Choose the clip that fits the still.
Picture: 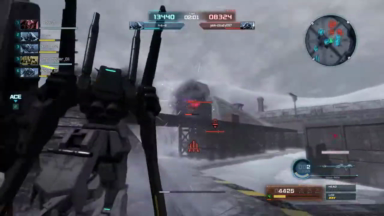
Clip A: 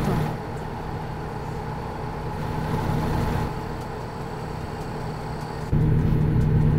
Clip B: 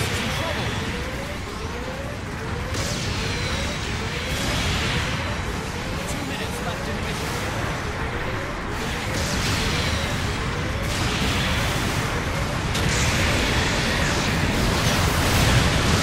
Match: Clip B